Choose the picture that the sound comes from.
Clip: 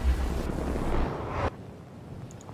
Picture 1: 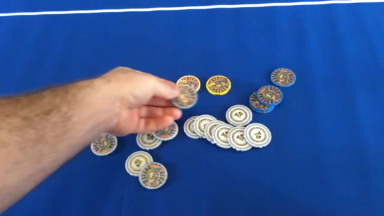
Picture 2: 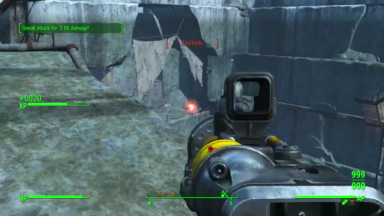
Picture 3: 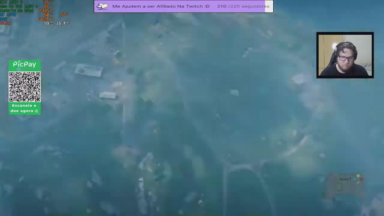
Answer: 3